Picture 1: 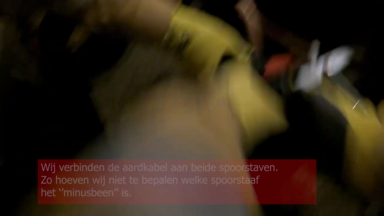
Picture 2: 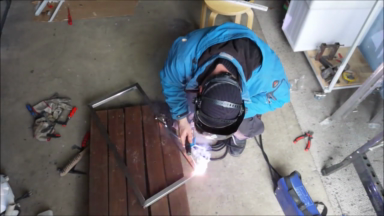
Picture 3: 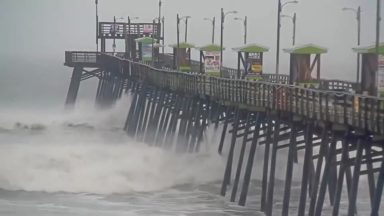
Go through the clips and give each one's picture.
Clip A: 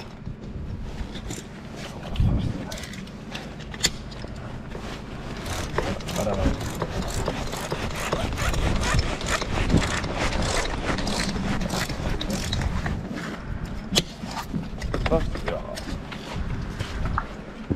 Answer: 1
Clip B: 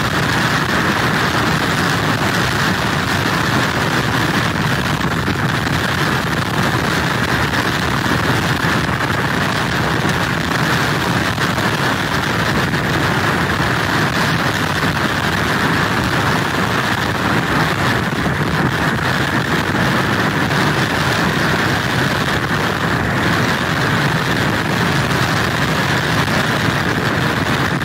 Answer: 3